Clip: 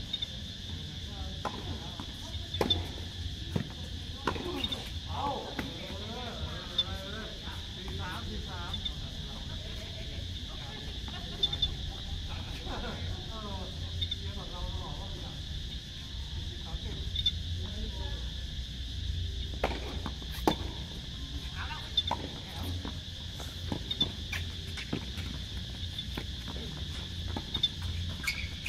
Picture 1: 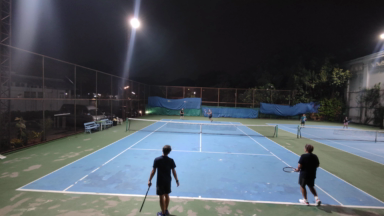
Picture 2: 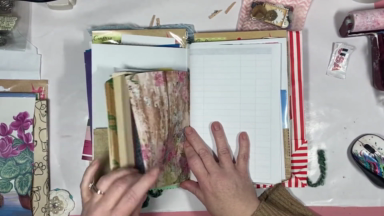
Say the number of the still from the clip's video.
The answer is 1